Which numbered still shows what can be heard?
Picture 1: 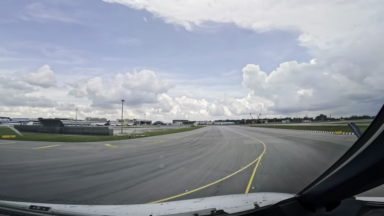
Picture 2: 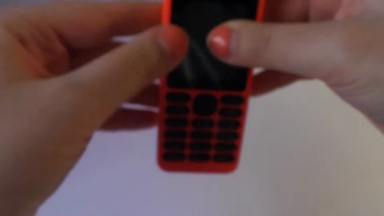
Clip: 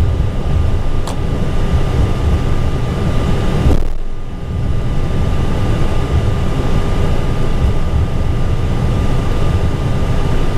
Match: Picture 1